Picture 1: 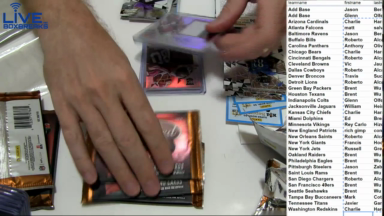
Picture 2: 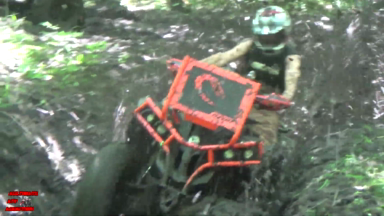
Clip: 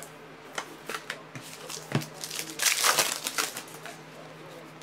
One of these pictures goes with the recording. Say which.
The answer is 1